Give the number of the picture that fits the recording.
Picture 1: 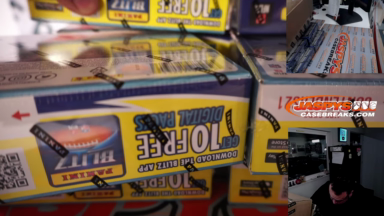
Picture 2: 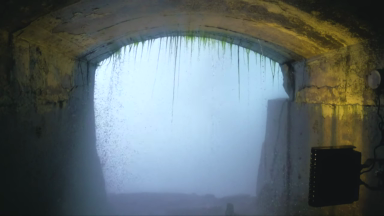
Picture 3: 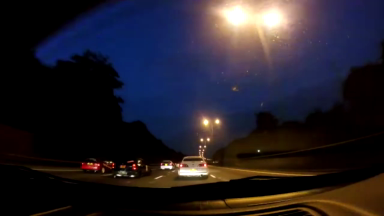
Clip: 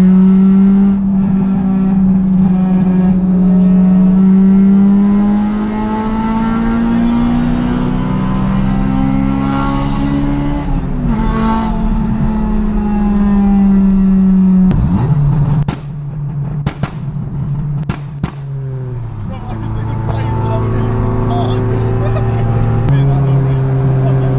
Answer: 3